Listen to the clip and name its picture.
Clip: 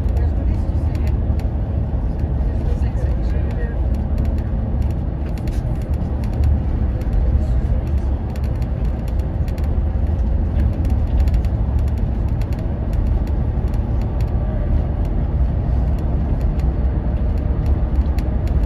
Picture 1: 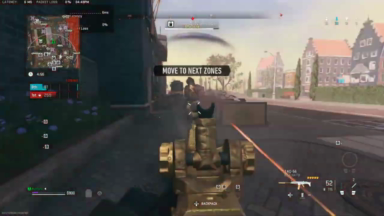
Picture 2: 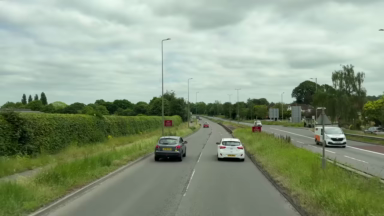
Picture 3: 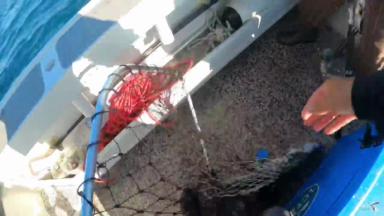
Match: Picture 2